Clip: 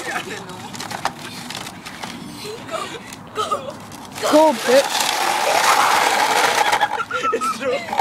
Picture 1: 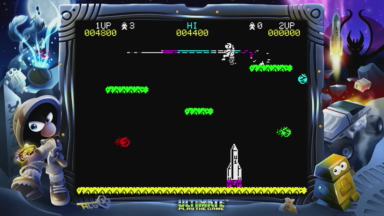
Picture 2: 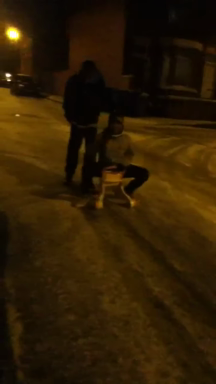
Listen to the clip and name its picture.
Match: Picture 2